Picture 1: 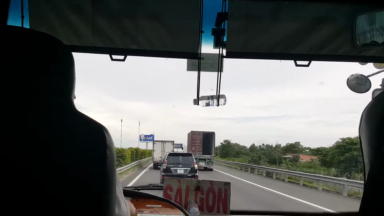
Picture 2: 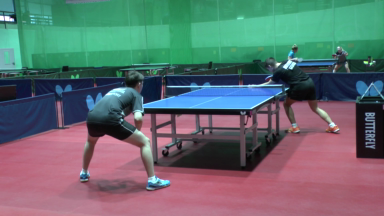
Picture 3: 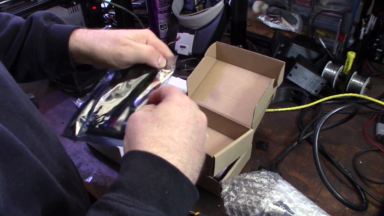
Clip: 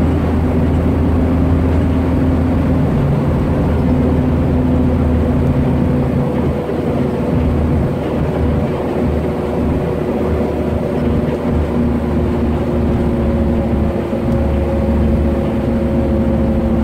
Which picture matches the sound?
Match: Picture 1